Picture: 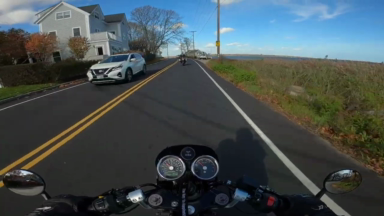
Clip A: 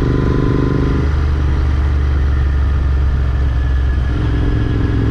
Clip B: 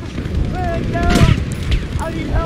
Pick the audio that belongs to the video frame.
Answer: A